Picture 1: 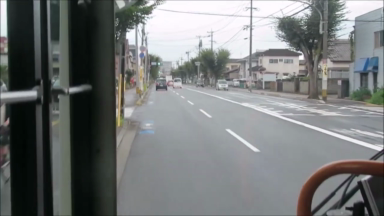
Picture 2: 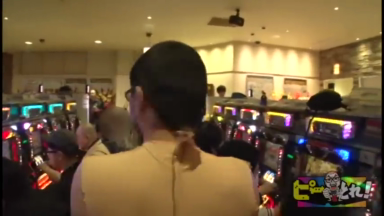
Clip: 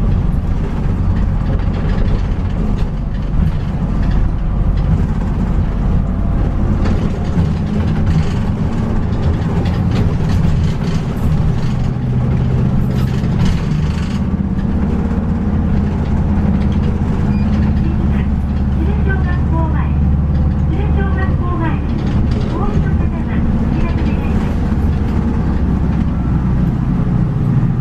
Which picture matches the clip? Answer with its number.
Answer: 1